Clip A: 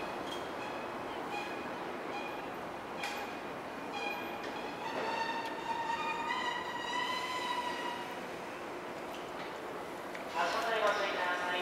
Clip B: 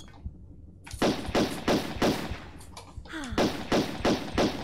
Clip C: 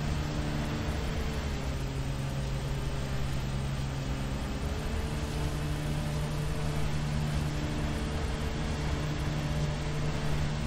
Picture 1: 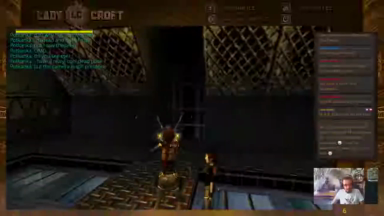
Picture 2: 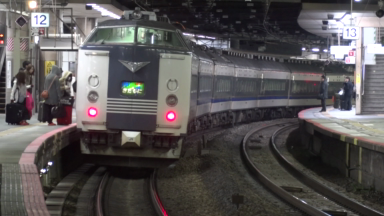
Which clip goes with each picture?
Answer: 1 B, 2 A